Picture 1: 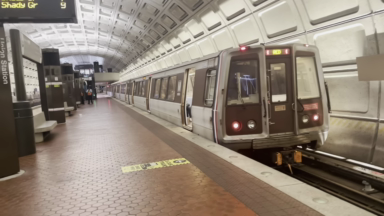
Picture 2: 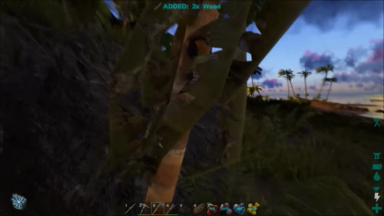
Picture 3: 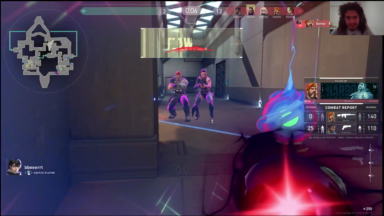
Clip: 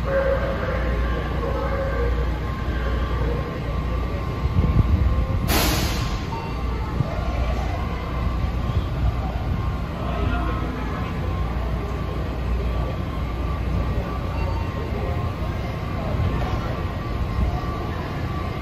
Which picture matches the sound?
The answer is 1